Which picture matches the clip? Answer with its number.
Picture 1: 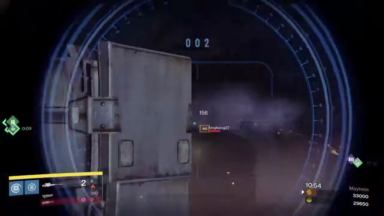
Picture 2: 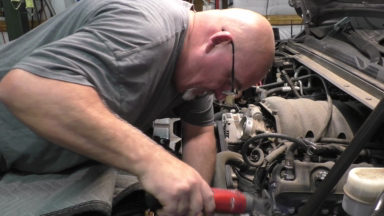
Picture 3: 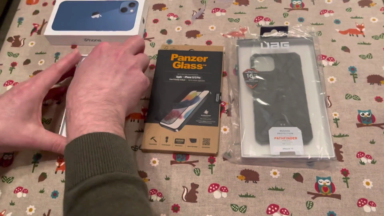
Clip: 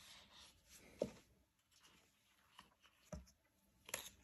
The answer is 3